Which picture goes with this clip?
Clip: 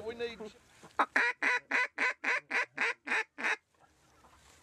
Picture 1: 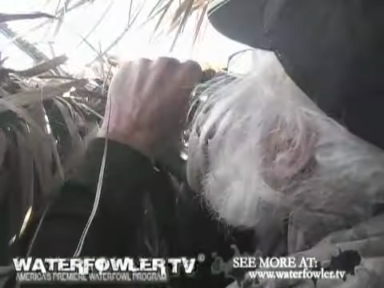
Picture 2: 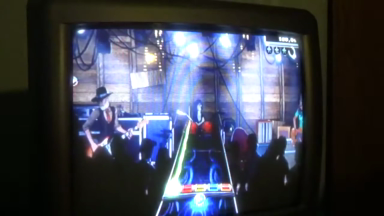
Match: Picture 1